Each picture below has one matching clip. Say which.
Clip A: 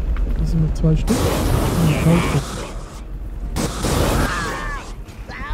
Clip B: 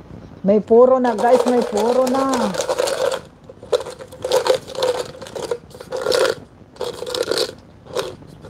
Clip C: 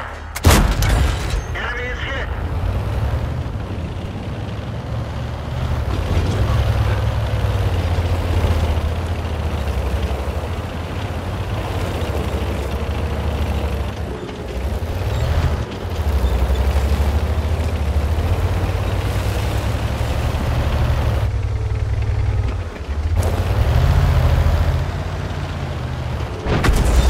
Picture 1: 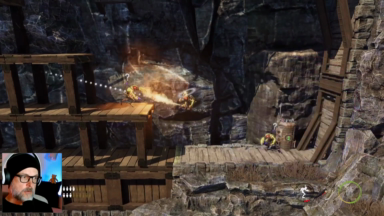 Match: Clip A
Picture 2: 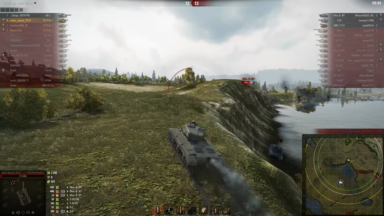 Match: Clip C